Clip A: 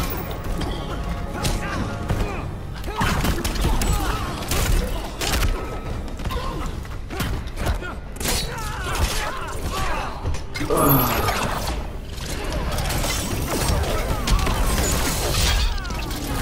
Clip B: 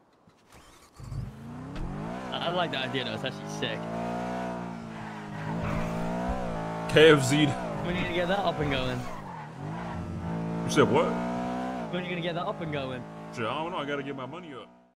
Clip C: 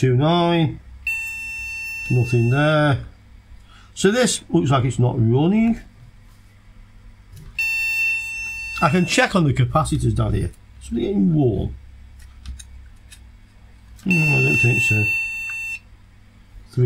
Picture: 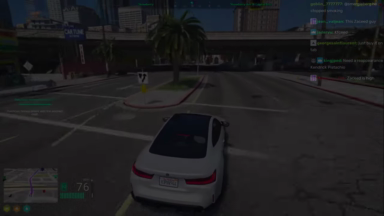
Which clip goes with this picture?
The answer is B